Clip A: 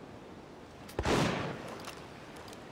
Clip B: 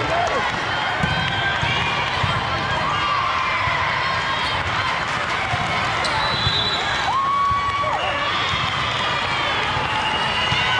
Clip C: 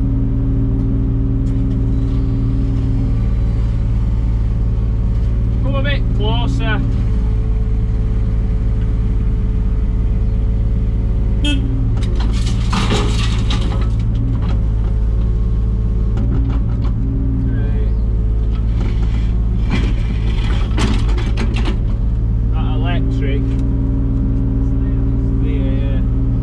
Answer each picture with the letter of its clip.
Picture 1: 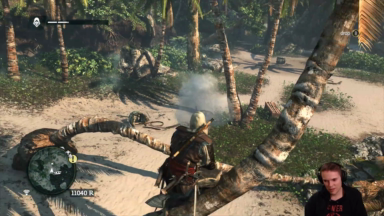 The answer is A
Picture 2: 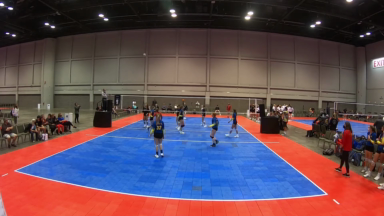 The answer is B